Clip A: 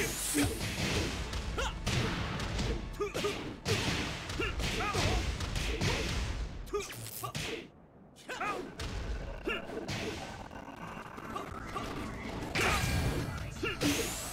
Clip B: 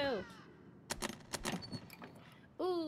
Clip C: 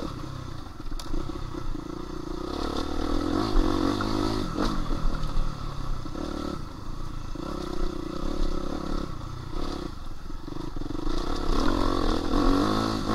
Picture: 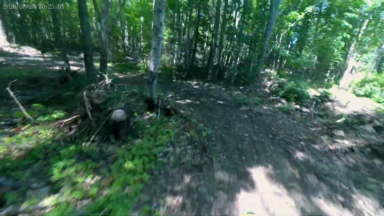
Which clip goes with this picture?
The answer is C